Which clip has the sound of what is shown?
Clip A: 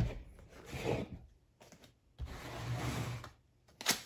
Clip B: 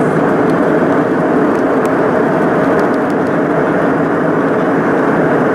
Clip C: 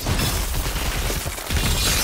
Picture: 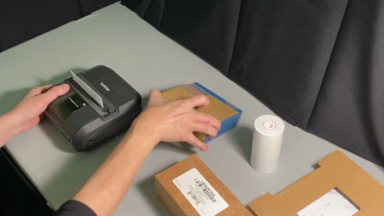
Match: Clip A